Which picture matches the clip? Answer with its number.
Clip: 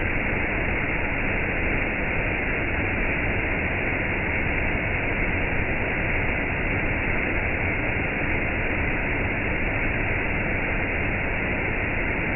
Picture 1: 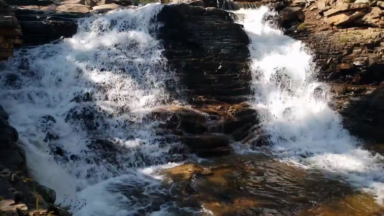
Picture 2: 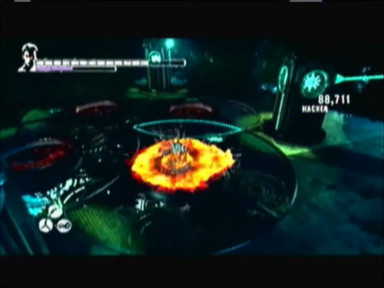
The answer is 1